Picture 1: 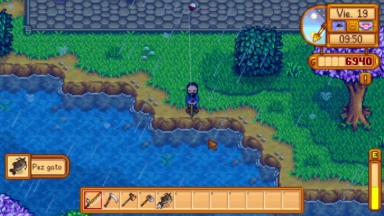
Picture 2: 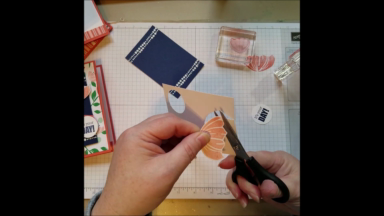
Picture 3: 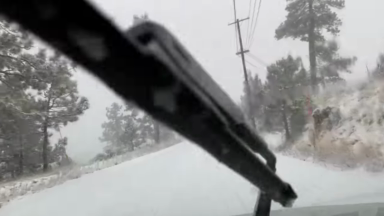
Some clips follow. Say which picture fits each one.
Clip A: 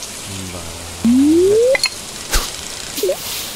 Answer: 1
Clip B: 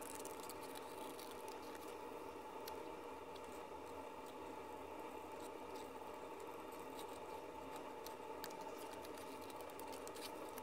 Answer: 2